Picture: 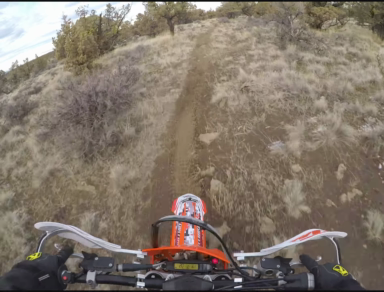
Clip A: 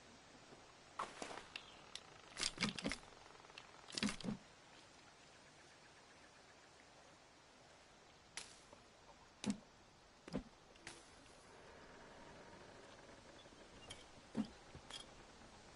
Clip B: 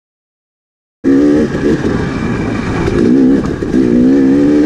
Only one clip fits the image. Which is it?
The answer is B